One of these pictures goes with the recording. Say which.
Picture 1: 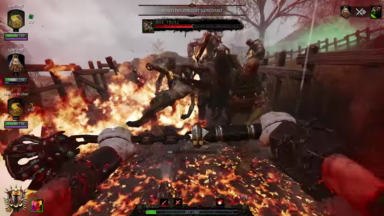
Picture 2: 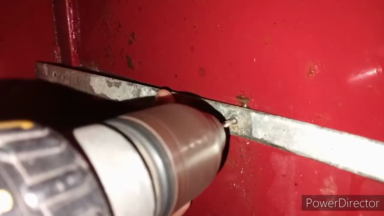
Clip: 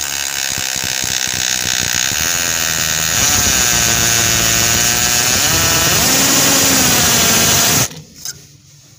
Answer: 2